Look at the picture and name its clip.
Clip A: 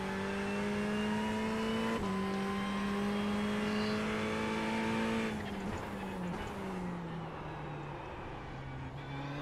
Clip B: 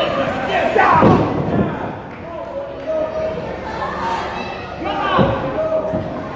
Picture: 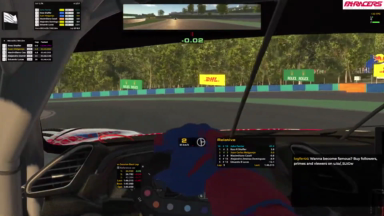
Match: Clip A